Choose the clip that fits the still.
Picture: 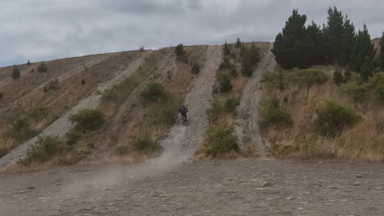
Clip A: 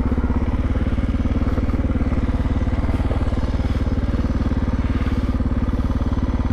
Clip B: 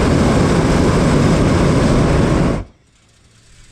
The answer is A